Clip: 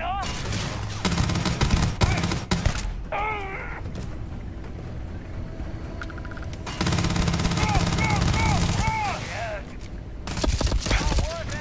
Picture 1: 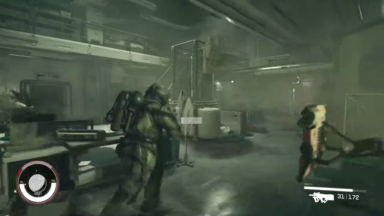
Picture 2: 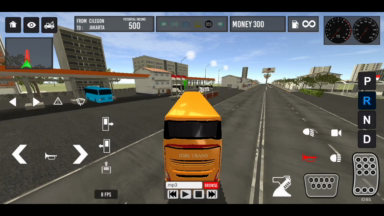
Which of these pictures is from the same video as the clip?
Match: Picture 1